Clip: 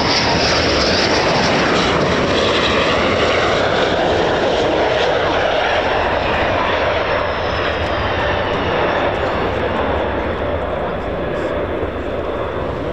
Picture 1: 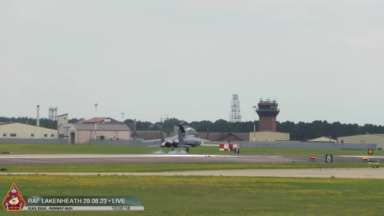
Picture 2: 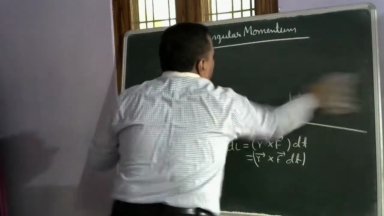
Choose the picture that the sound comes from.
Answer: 1